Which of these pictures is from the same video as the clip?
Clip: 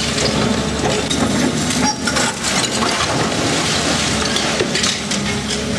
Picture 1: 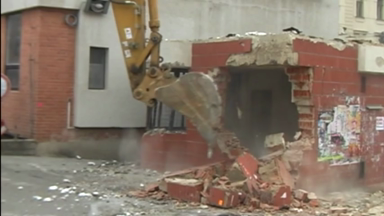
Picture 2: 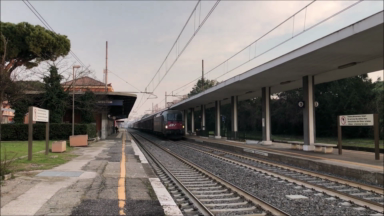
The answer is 1